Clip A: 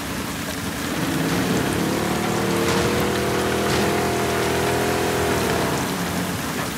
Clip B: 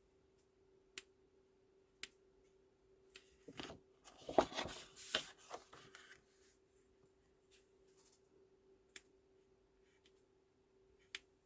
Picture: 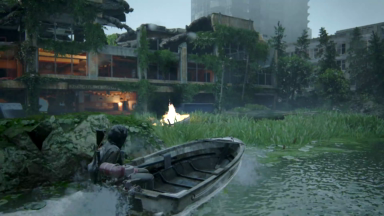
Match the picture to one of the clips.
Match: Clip A